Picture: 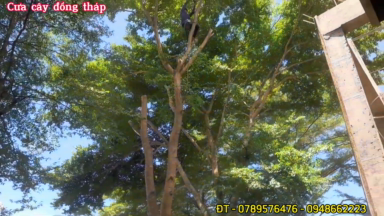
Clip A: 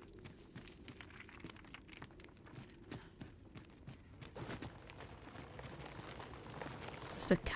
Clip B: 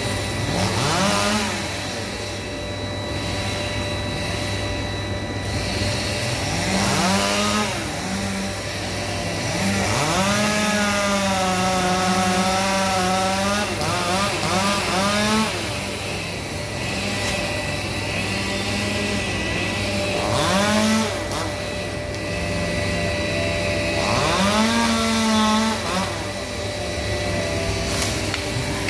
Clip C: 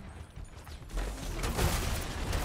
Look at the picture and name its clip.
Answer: B